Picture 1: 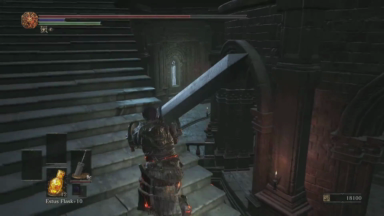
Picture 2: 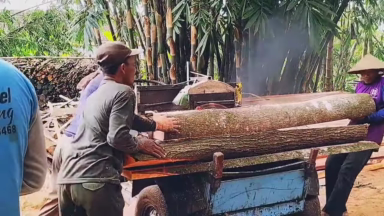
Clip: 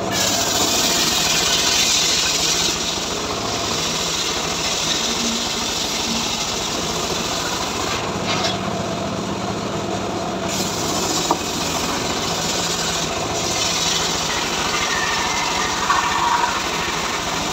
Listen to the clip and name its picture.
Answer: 2